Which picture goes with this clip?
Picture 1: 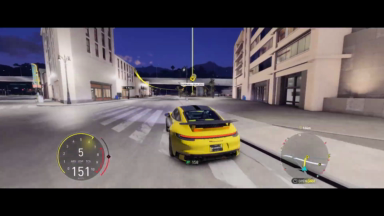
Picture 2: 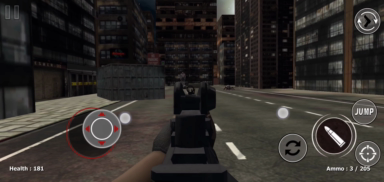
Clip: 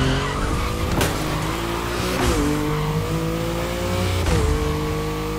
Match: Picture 1